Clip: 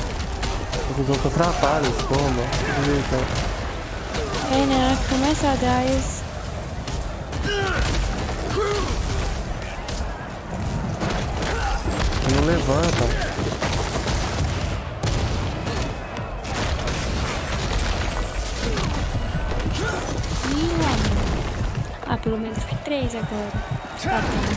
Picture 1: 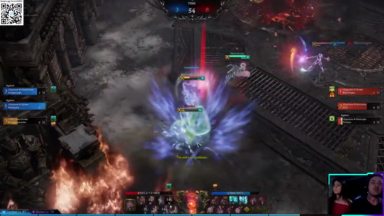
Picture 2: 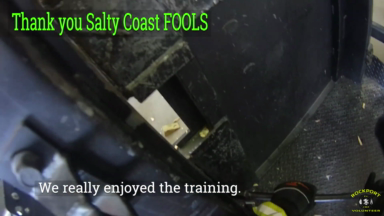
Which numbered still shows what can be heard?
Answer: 1